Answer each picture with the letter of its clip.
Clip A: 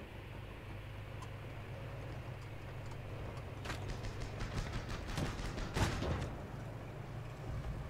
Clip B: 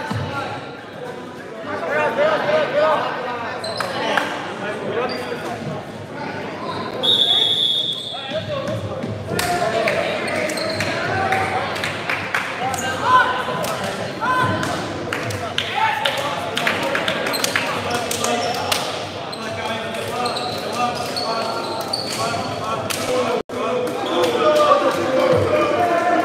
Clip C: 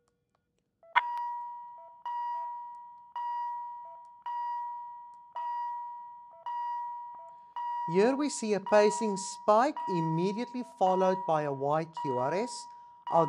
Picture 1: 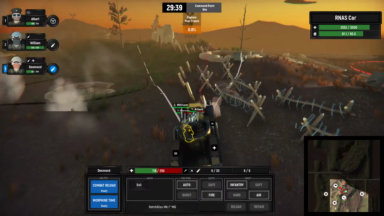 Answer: A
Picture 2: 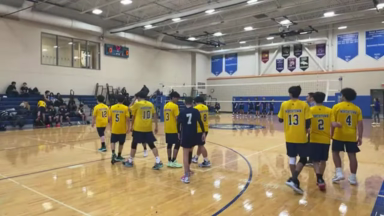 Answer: B